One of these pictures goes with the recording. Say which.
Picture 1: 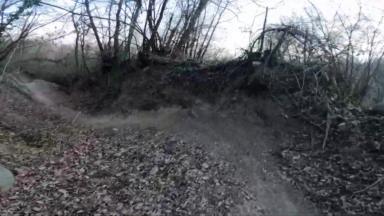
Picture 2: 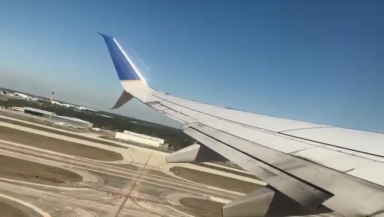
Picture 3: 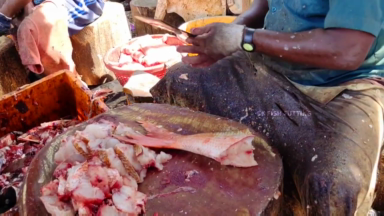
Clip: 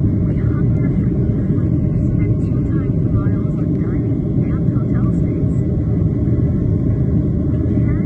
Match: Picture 2